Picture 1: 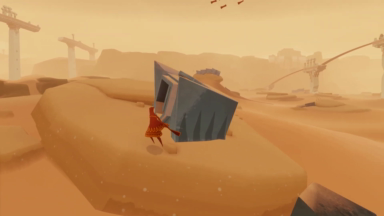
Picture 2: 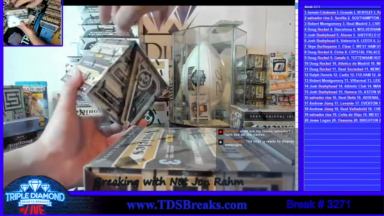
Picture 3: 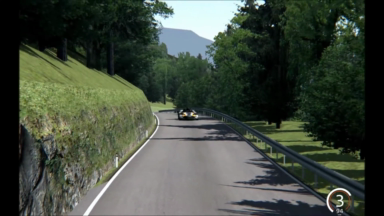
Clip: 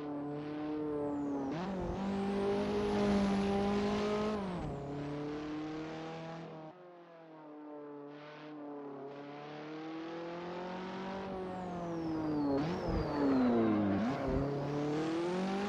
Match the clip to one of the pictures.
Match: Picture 3